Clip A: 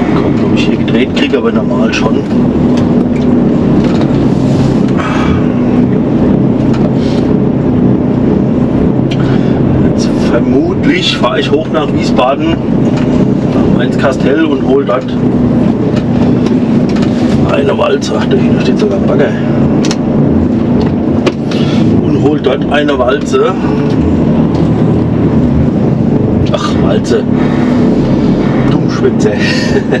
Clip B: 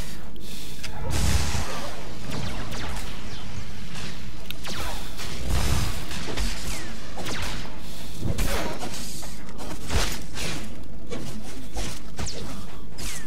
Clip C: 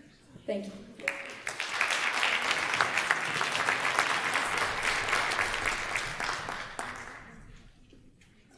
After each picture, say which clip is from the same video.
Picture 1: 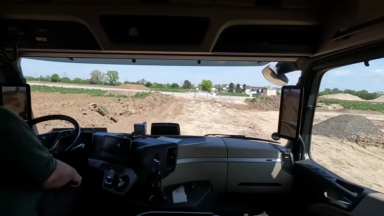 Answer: A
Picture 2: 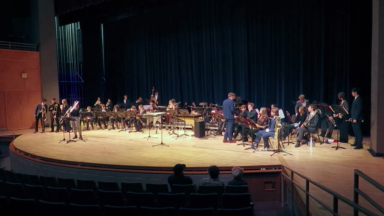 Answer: C